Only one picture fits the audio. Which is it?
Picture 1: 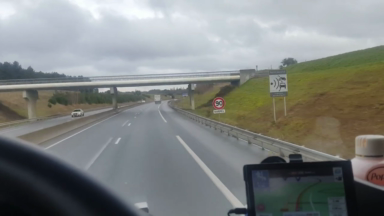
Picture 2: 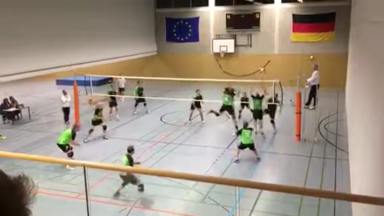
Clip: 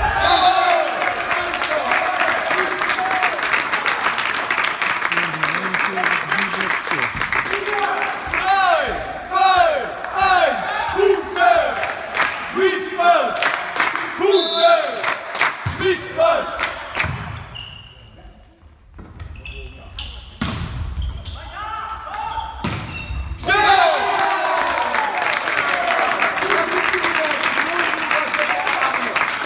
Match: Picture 2